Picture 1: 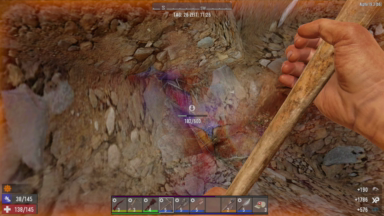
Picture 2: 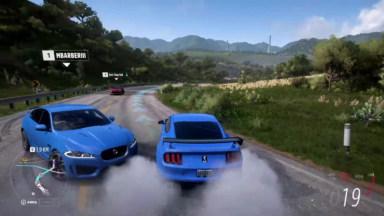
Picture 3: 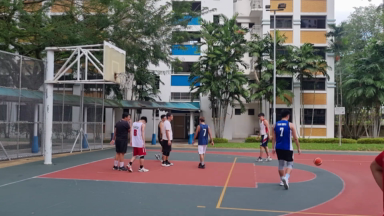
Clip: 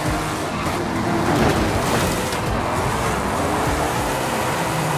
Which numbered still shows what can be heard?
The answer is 2